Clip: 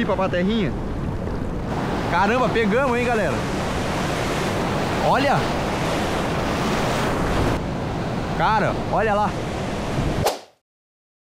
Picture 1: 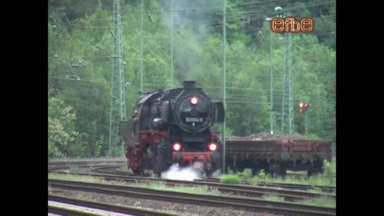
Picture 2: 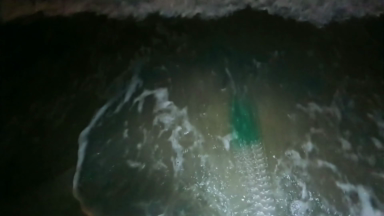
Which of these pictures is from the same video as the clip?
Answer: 2